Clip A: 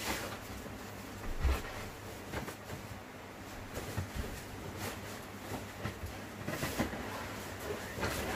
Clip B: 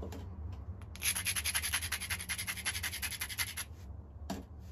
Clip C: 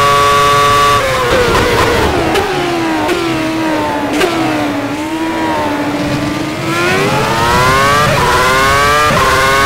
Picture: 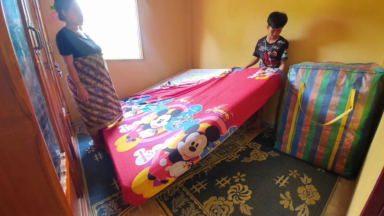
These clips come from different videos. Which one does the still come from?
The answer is A